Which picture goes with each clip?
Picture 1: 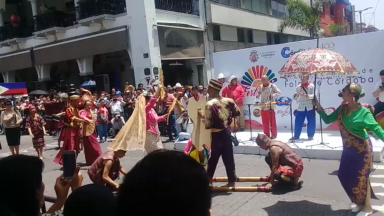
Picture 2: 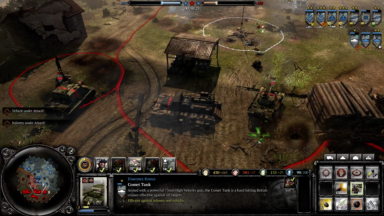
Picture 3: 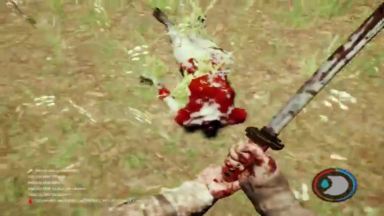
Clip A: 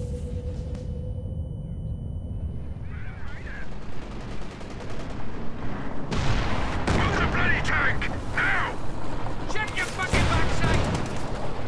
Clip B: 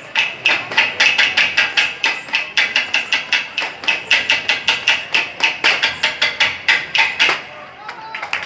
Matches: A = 2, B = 1